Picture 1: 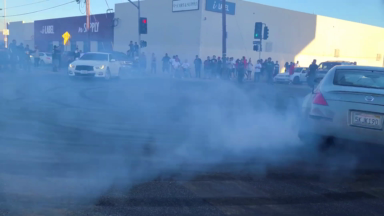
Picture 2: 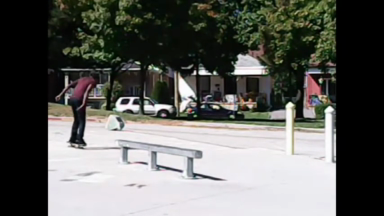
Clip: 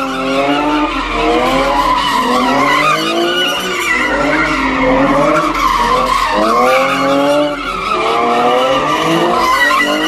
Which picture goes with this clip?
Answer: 1